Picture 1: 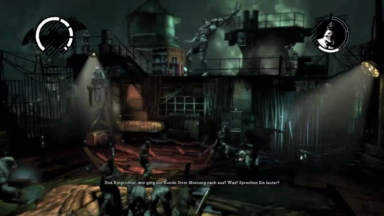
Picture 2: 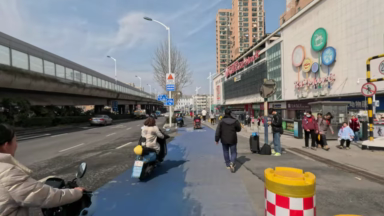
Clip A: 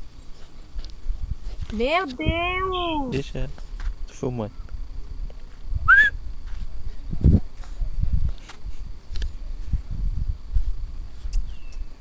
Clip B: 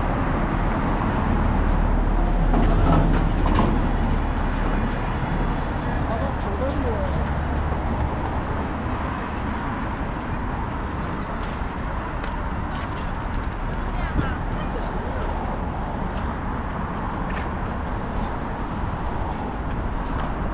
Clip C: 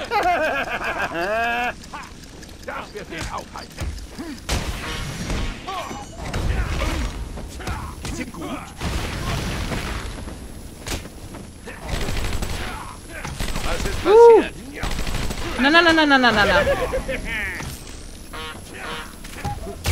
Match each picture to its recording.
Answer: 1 C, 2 B